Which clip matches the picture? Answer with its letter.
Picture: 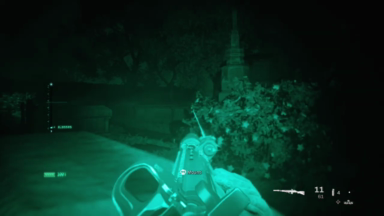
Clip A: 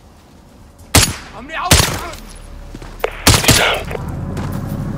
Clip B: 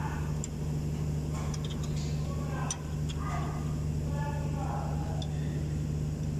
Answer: A